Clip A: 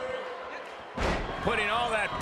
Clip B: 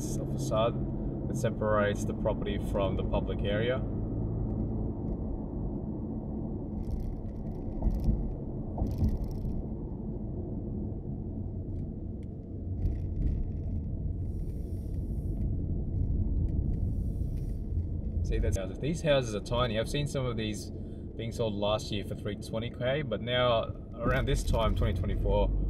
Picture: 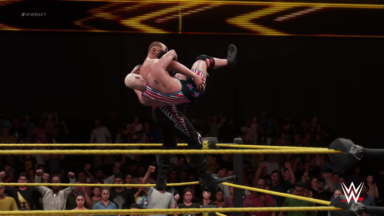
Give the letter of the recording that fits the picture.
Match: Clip A